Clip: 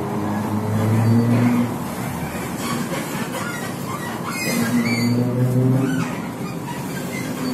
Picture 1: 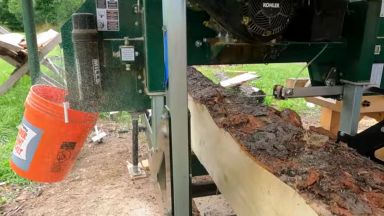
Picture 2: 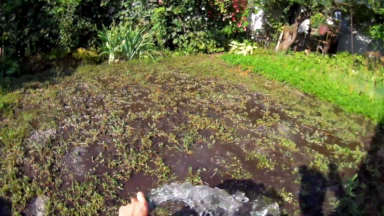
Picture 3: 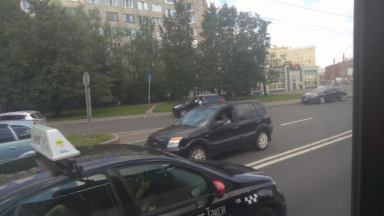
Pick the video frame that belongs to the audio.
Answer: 3